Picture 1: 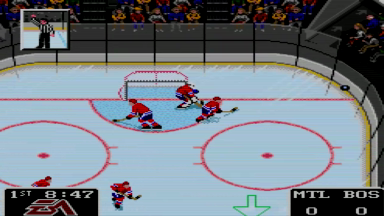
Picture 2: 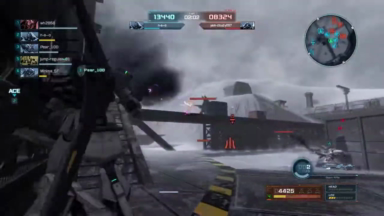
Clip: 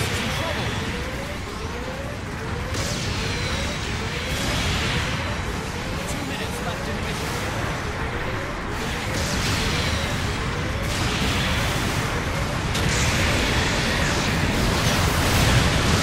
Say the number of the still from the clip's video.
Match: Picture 2